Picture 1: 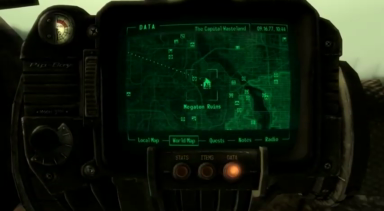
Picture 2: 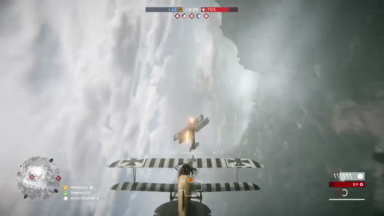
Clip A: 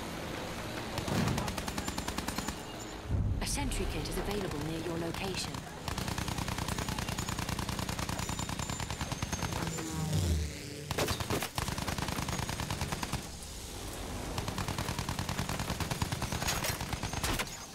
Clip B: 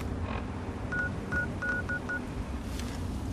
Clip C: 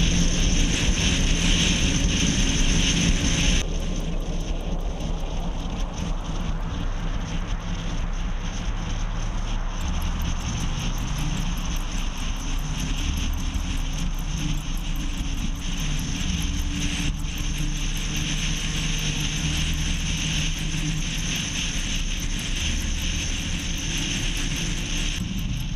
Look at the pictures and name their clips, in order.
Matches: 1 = B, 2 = A